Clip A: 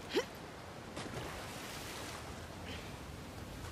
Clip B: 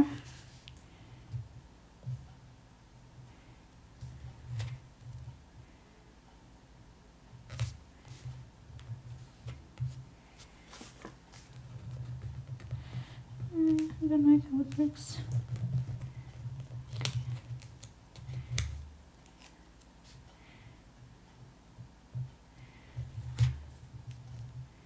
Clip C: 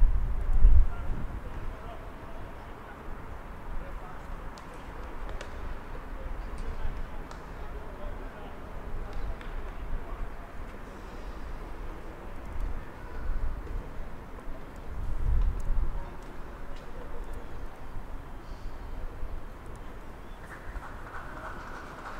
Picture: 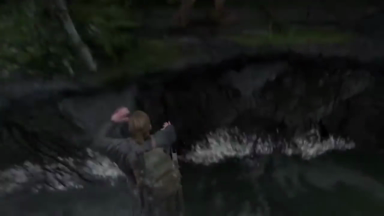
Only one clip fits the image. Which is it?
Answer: A